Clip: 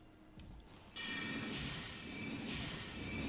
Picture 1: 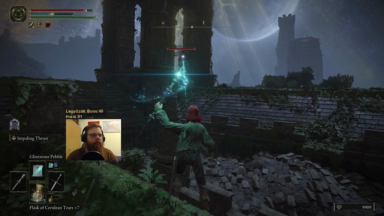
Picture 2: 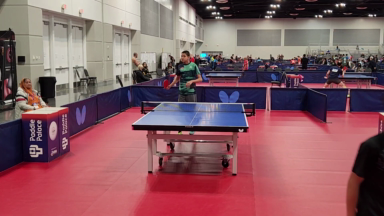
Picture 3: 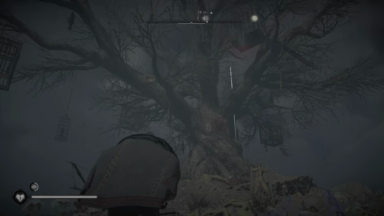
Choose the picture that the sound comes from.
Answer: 1